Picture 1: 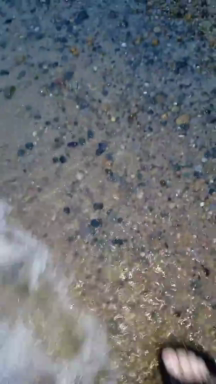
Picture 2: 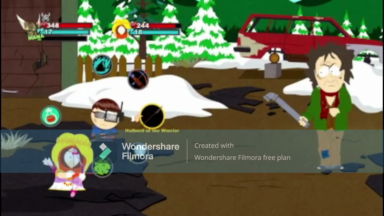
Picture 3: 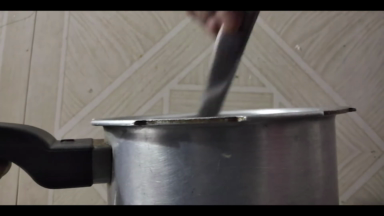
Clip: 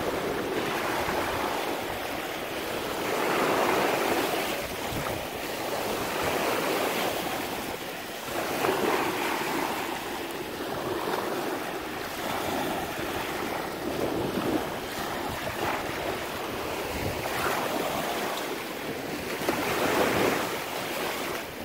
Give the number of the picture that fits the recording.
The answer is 1